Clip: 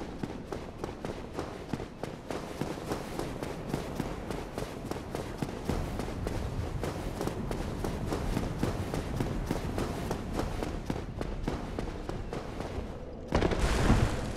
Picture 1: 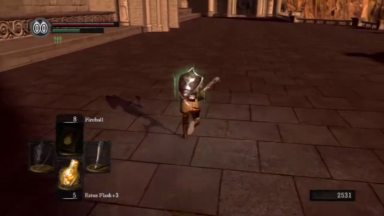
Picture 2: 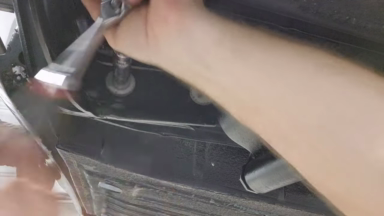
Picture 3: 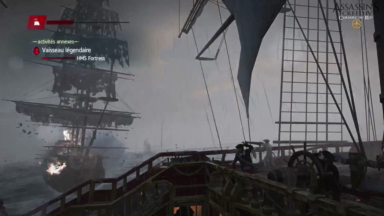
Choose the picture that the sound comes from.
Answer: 1